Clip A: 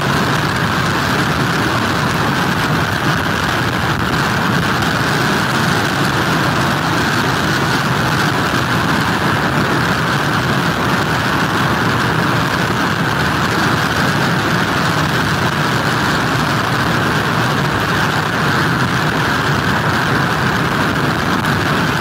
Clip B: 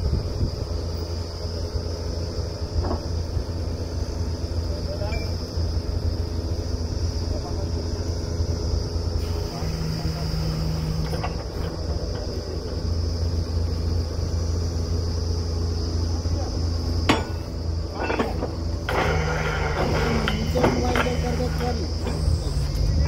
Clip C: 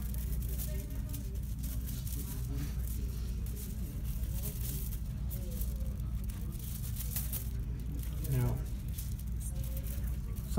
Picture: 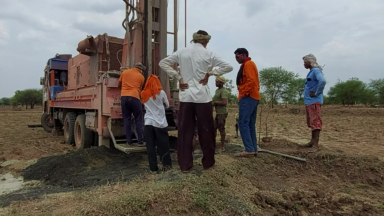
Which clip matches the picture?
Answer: B